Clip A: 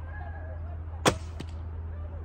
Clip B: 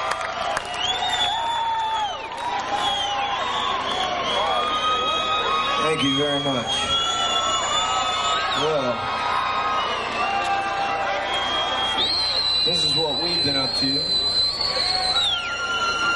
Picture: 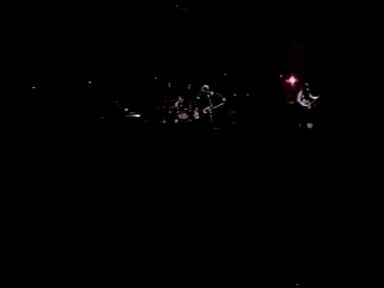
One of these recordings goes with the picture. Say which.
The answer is B